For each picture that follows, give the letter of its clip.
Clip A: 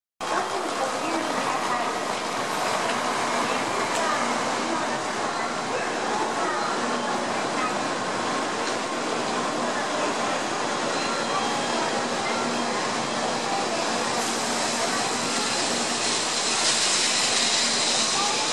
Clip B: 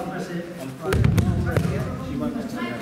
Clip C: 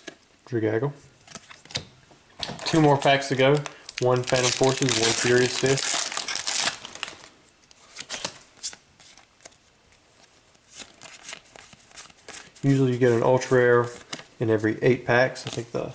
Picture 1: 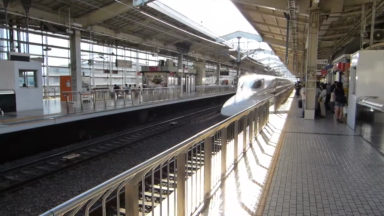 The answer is A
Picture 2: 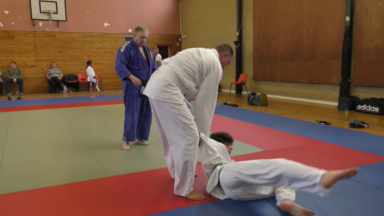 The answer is B